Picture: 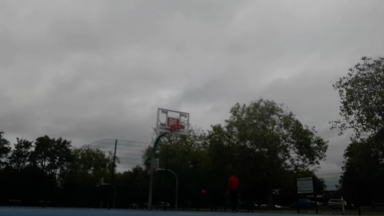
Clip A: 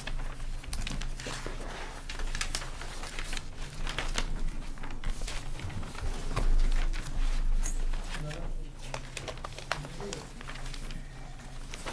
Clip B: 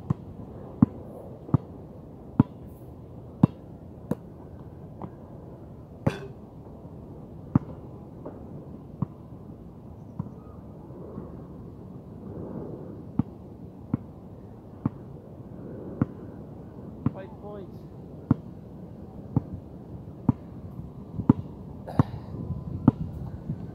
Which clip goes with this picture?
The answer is B